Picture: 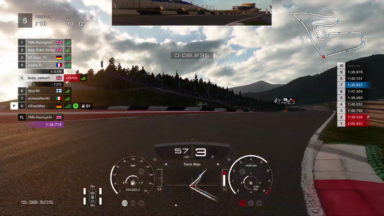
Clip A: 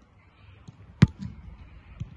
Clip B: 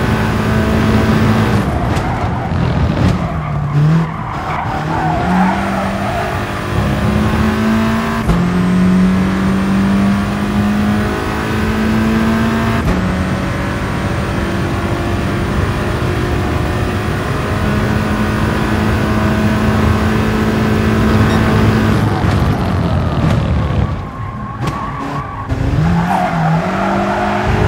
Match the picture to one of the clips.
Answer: B